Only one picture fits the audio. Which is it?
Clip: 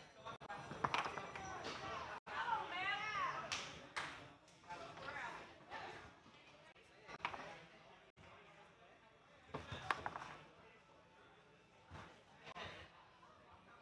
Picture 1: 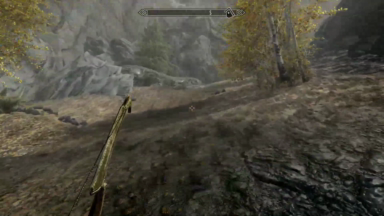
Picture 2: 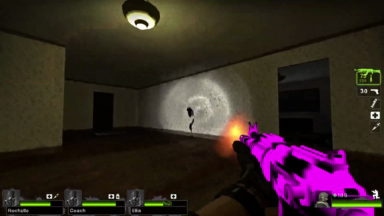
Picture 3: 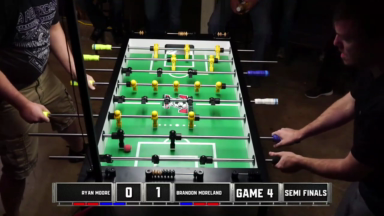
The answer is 3